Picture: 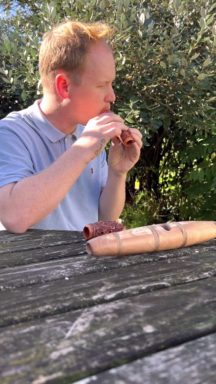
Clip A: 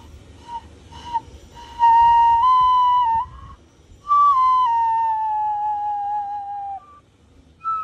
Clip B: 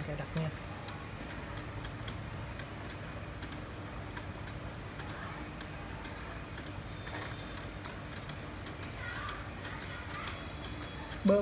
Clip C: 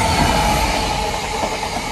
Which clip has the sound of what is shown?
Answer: A